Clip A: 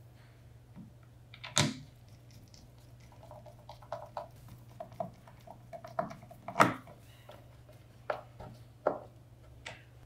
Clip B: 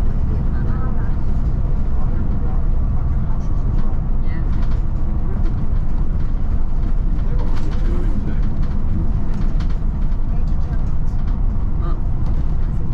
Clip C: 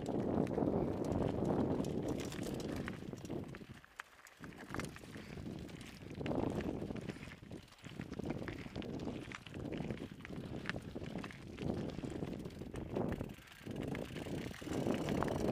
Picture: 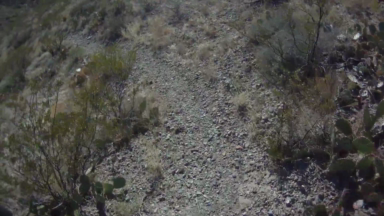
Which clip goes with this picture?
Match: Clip C